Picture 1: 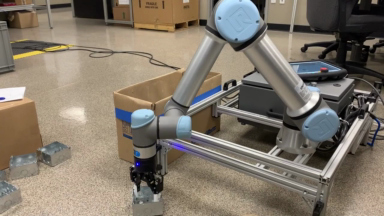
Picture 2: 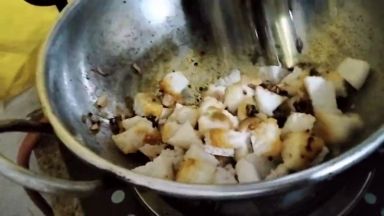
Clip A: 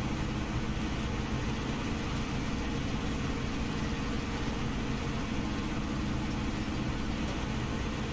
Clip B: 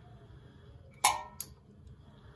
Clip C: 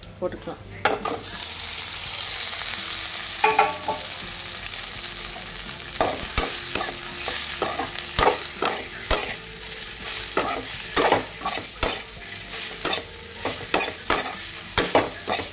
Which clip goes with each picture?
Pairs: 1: B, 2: C